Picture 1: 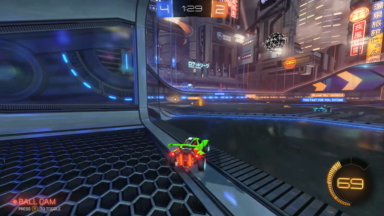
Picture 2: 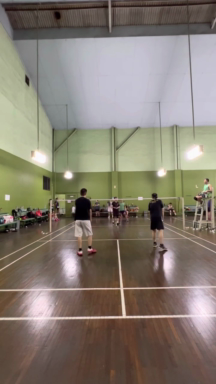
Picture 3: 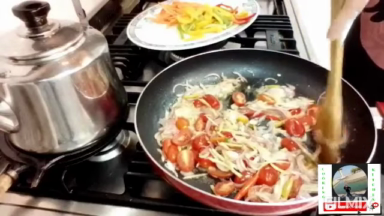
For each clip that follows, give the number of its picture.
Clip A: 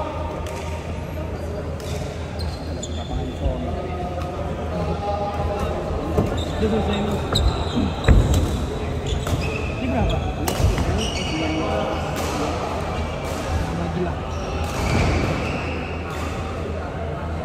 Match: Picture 2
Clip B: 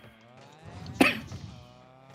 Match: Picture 1